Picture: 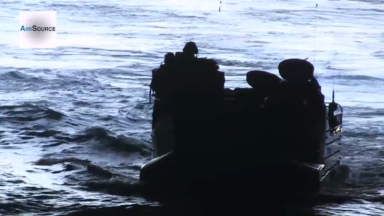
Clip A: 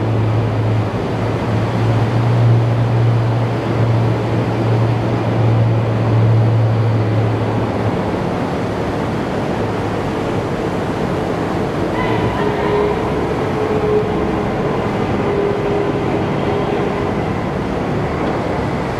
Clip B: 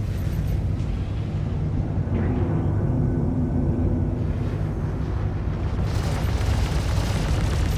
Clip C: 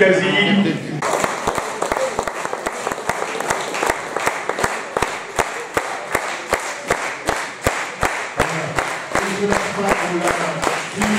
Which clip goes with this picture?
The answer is A